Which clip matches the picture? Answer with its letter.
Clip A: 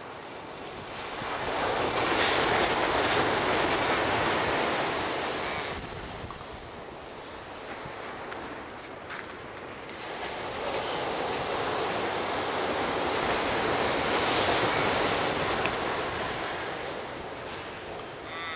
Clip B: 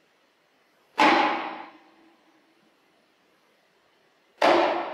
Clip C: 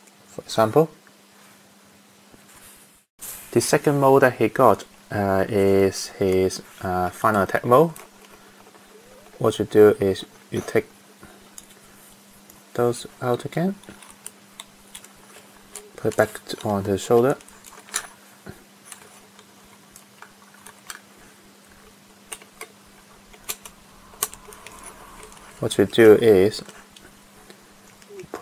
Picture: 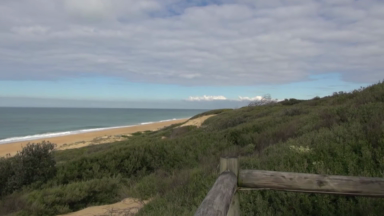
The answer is A